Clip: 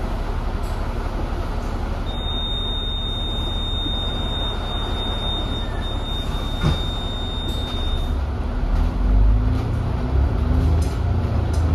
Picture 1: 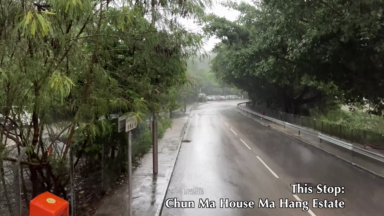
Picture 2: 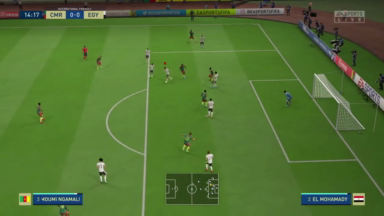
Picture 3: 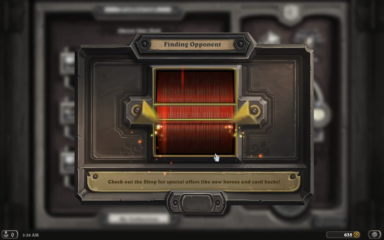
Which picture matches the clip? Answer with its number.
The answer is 1